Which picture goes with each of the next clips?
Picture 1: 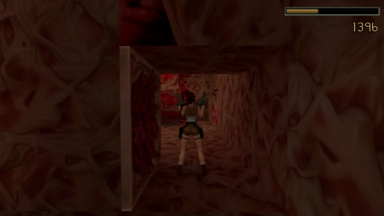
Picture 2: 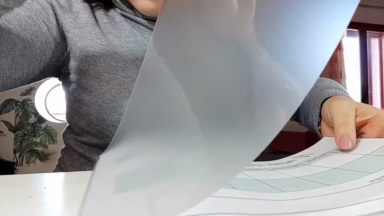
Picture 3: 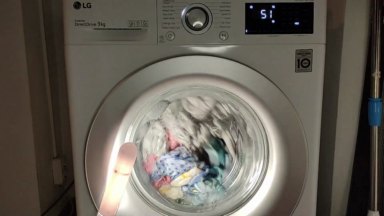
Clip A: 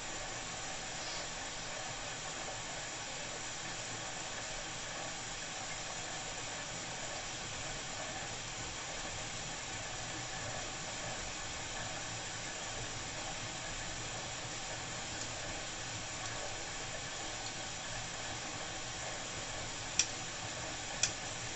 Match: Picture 3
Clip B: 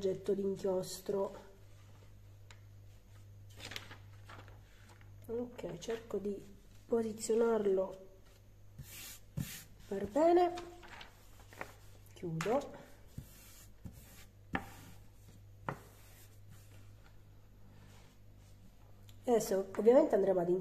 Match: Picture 2